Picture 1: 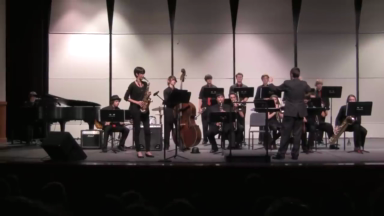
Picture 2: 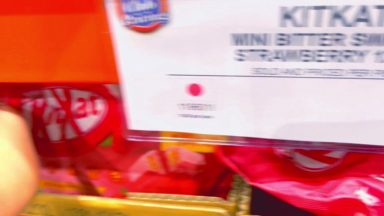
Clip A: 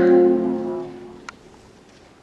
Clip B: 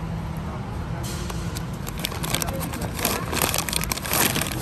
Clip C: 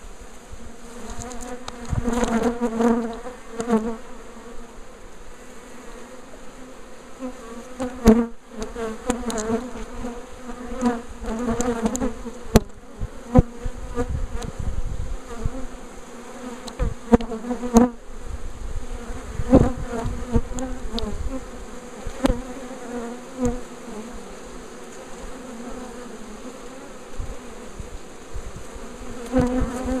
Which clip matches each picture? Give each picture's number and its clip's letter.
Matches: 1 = A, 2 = B